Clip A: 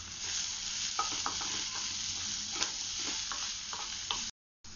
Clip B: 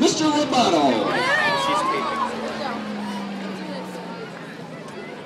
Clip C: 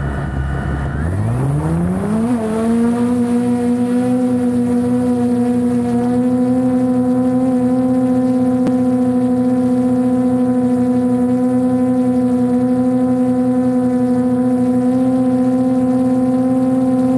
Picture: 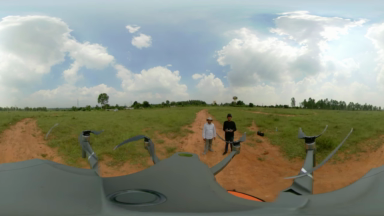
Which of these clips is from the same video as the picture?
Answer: C